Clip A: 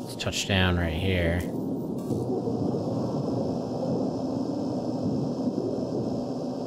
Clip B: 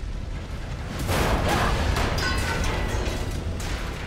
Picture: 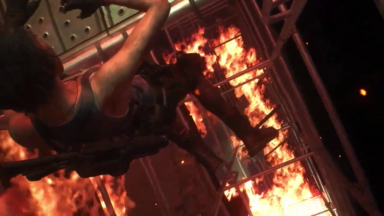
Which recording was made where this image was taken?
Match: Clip B